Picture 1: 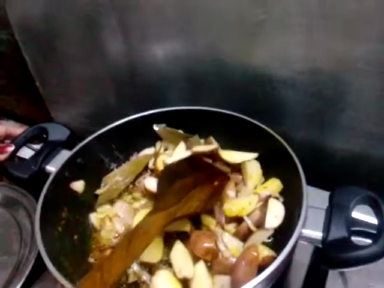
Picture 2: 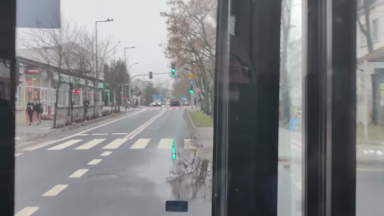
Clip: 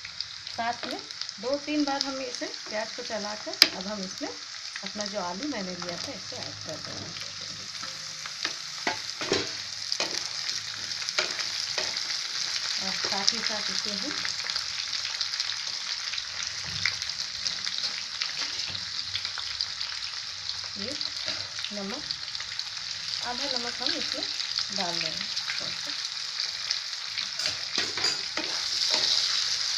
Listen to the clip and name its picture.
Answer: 1